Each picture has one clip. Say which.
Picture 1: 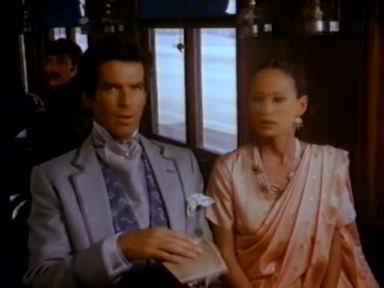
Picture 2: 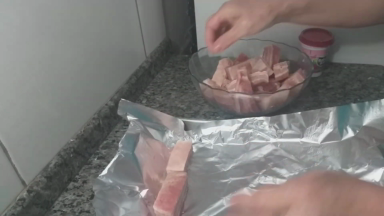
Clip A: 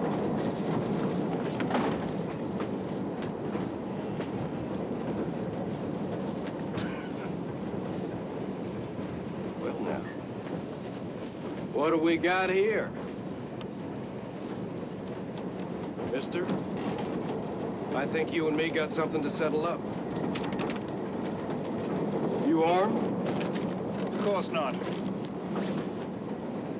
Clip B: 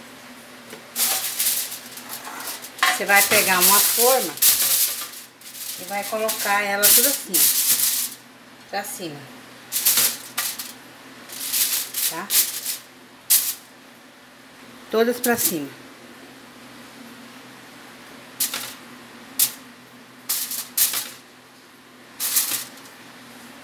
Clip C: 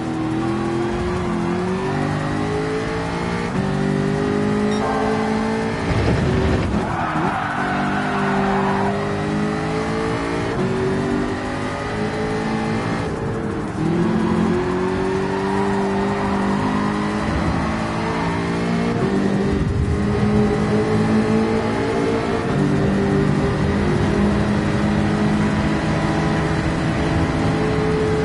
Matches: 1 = A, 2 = B